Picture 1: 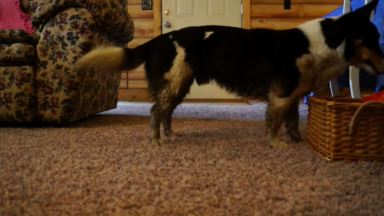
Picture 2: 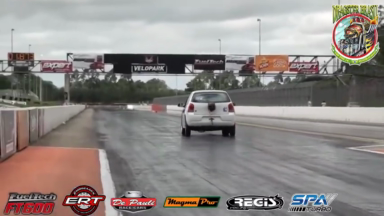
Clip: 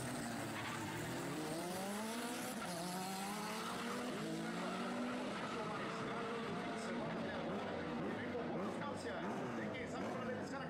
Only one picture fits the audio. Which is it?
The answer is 2